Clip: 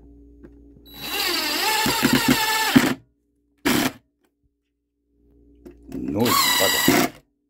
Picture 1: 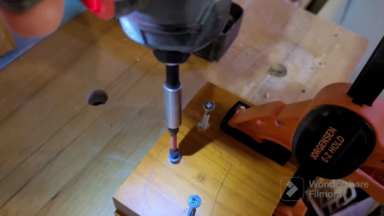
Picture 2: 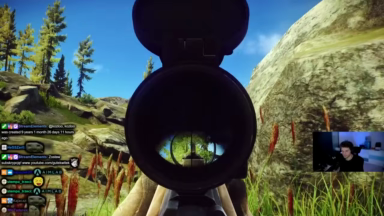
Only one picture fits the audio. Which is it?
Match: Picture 1